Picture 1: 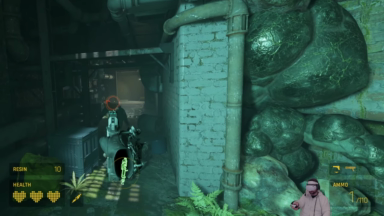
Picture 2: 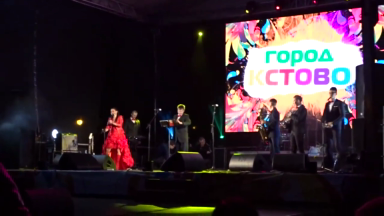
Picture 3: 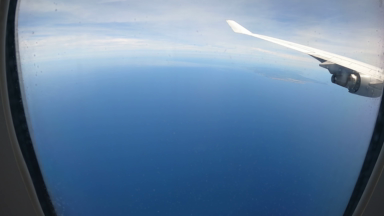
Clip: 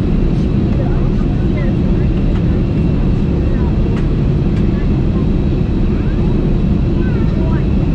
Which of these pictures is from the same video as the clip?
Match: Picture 3